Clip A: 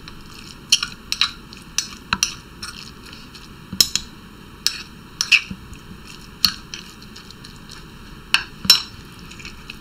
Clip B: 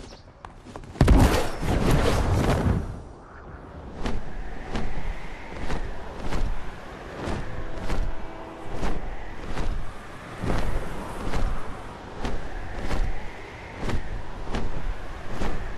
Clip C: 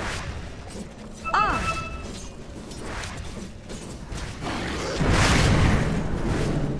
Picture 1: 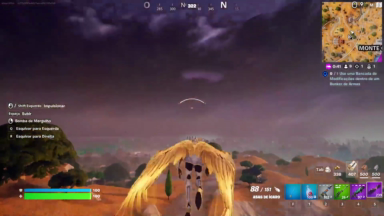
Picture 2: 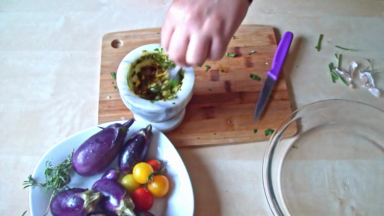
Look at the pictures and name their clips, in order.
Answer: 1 B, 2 A